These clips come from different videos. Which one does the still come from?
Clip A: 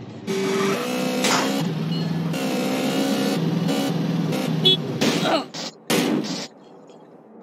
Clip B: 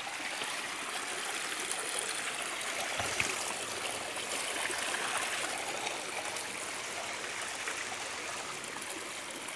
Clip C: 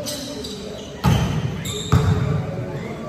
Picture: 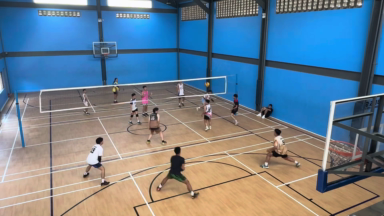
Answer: C